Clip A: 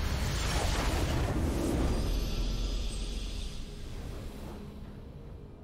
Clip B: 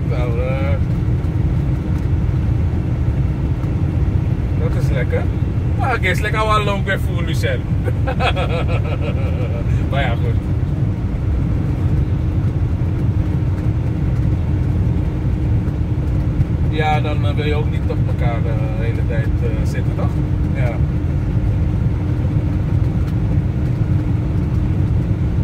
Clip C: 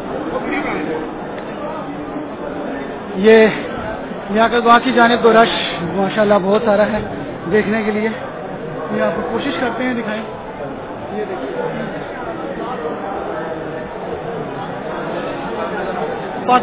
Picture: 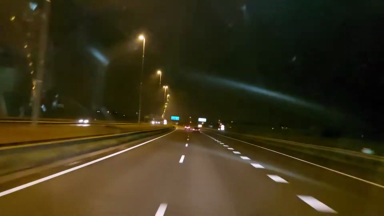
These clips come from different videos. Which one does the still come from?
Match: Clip B